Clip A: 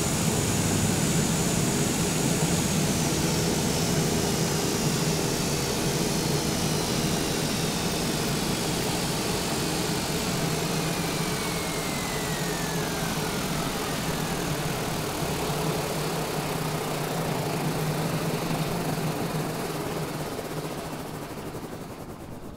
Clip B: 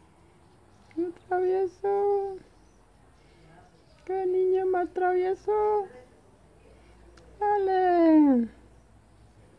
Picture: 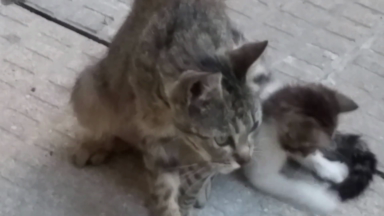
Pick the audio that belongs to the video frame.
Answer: B